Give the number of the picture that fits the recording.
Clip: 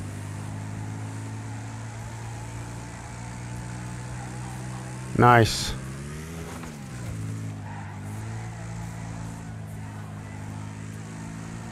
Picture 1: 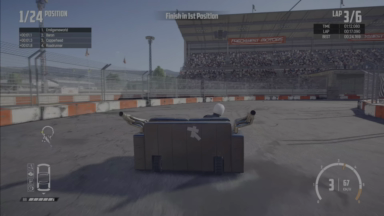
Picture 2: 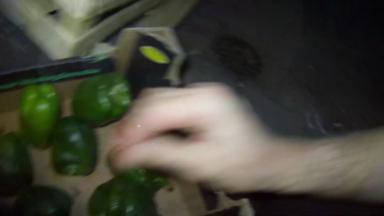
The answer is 1